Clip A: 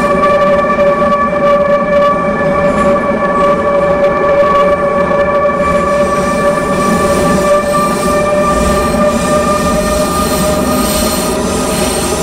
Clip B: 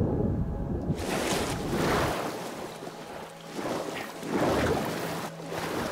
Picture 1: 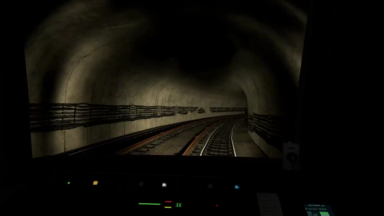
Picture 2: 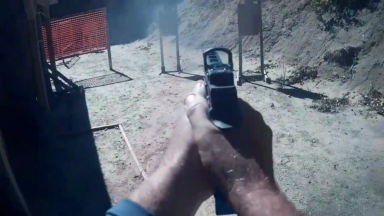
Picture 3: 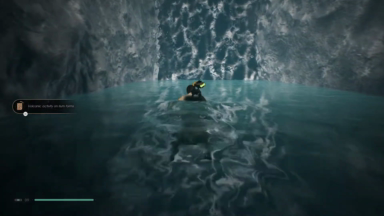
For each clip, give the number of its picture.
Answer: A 1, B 3